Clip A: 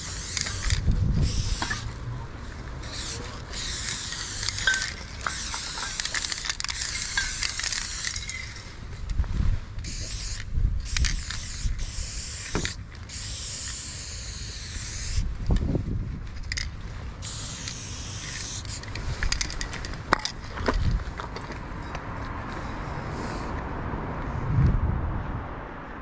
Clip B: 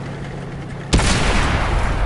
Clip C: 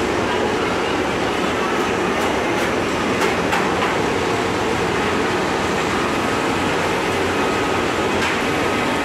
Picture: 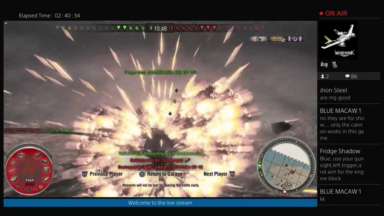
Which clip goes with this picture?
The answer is B